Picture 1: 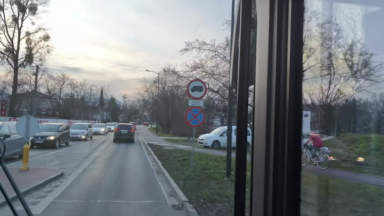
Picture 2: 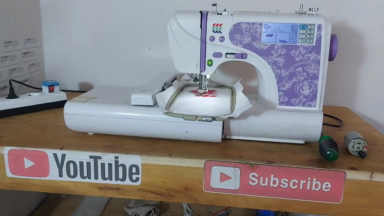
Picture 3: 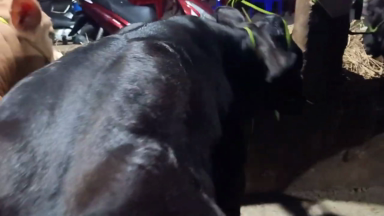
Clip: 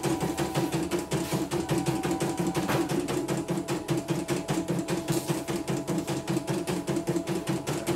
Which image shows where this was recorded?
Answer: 2